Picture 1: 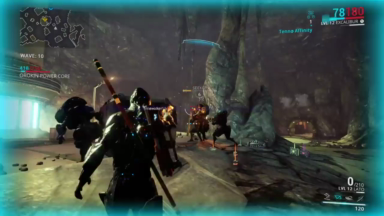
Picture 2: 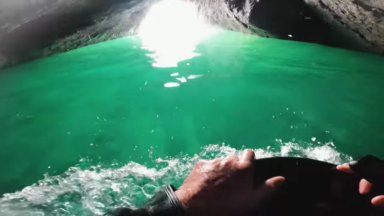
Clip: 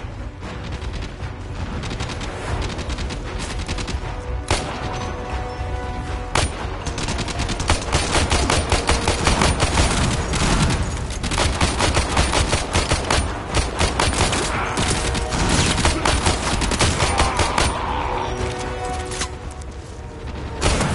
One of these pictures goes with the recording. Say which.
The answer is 1